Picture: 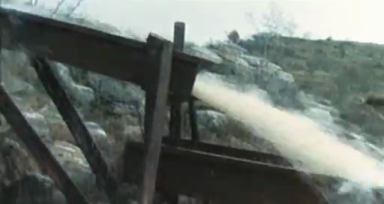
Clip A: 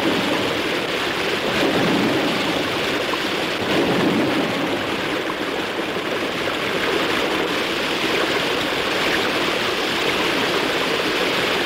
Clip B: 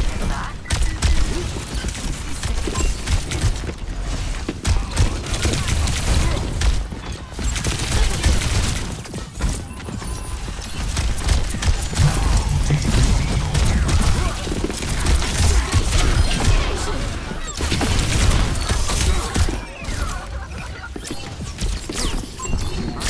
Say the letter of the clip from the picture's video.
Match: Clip A